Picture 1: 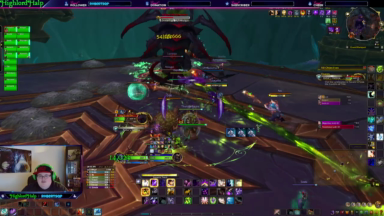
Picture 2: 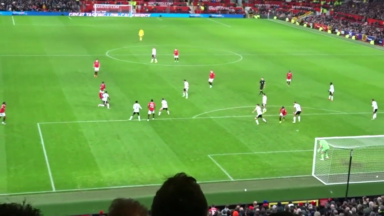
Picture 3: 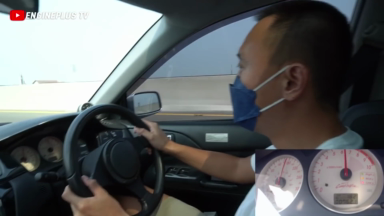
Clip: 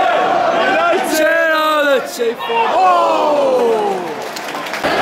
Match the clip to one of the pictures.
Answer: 2